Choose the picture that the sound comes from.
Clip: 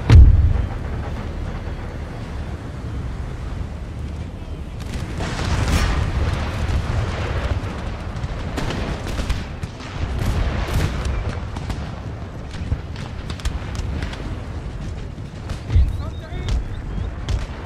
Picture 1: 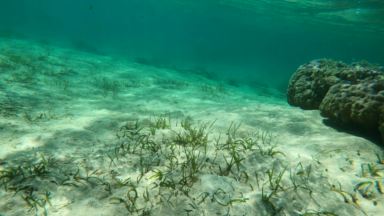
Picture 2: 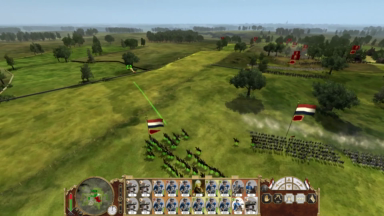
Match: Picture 2